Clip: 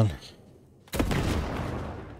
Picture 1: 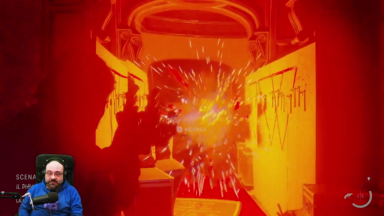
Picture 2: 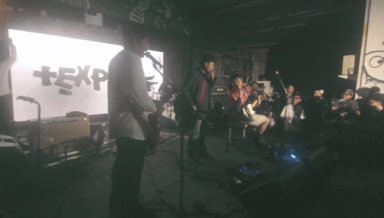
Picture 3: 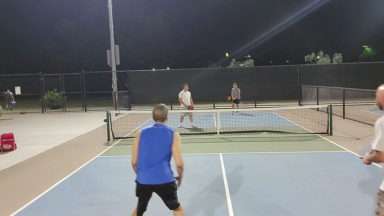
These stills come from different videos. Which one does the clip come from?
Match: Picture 1